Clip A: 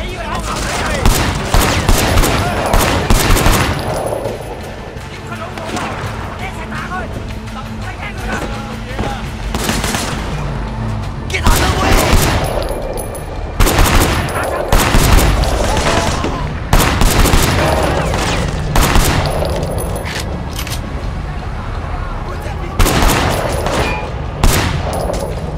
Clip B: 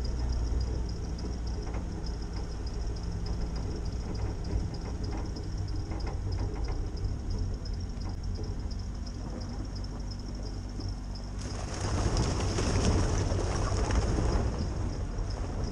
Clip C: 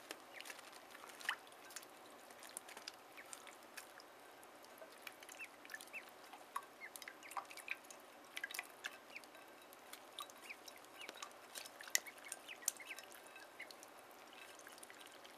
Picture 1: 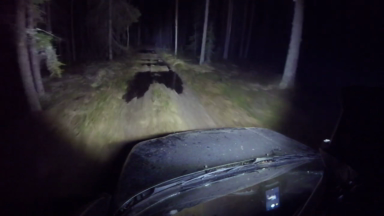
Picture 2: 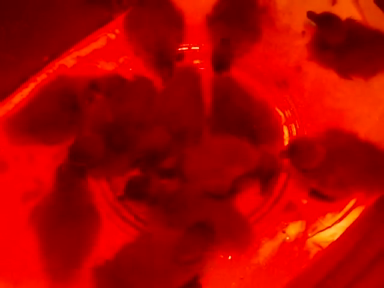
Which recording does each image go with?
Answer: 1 B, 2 C